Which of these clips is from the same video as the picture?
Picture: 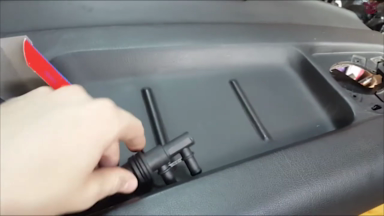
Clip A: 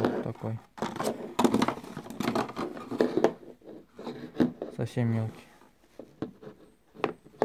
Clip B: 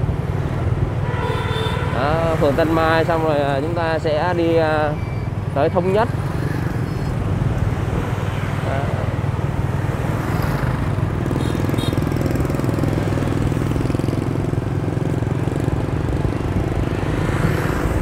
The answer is A